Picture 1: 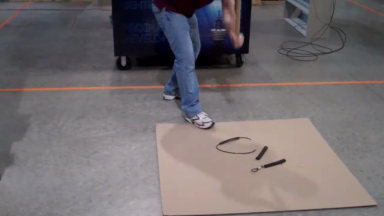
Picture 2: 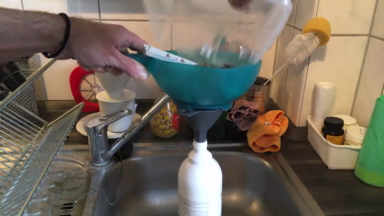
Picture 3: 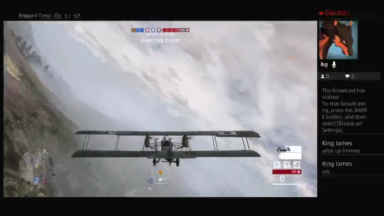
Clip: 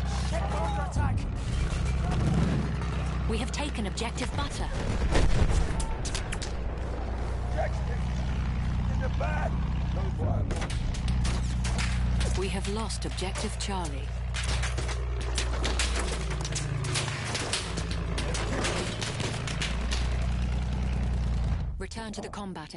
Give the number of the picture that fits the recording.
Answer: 3